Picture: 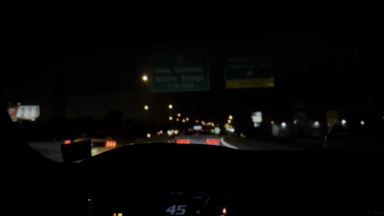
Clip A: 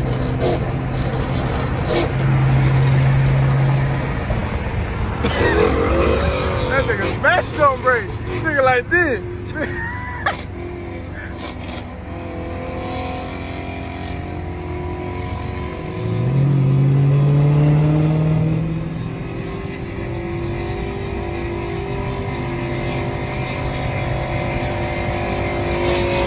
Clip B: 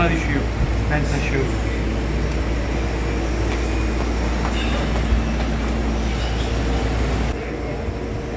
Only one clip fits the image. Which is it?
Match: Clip A